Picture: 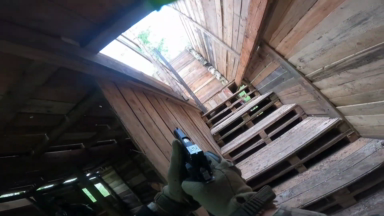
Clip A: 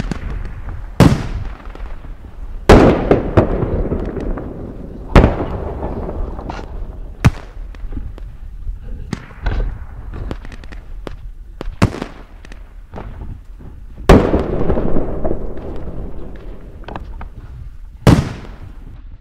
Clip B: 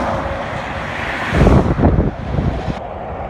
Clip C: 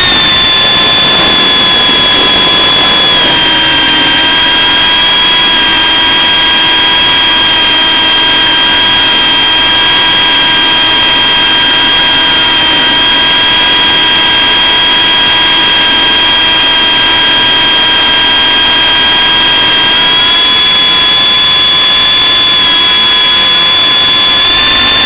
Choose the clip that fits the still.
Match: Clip A